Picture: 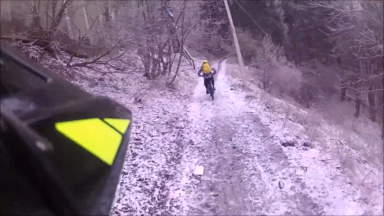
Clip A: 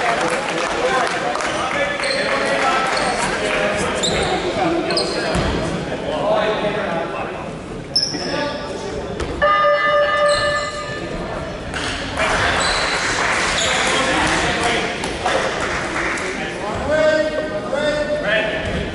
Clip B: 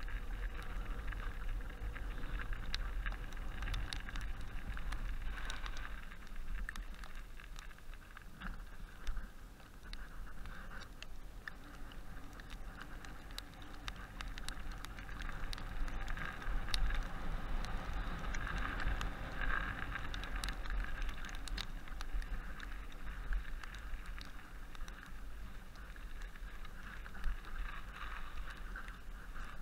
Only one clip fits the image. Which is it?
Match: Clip B